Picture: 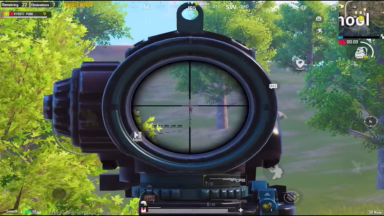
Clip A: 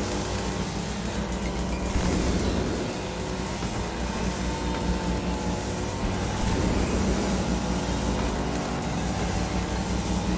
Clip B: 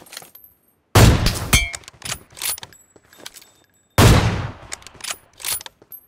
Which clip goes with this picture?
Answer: B